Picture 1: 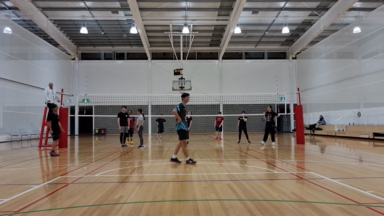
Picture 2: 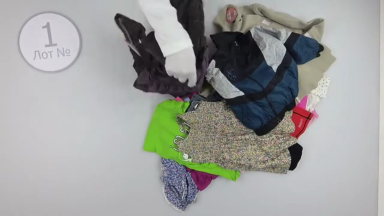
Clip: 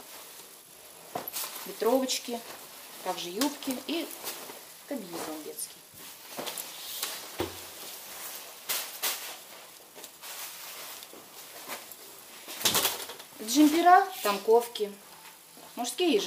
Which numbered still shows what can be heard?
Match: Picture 2